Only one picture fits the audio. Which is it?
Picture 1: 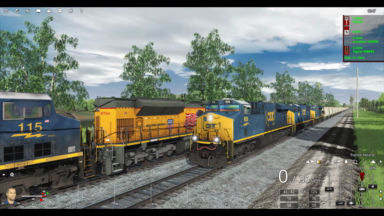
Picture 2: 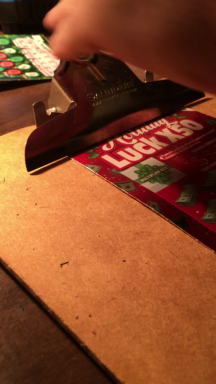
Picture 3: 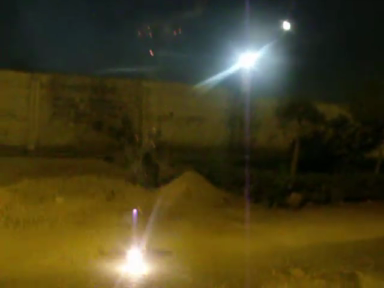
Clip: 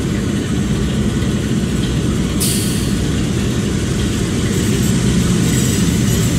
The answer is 1